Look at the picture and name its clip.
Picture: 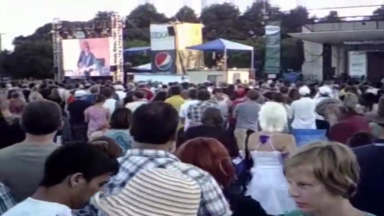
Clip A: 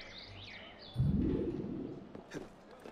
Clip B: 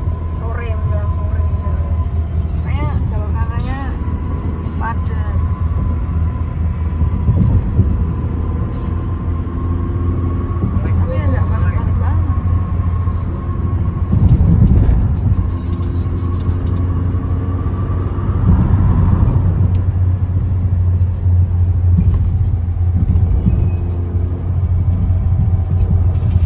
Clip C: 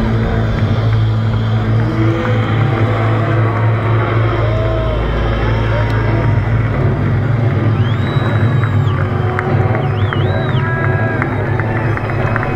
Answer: C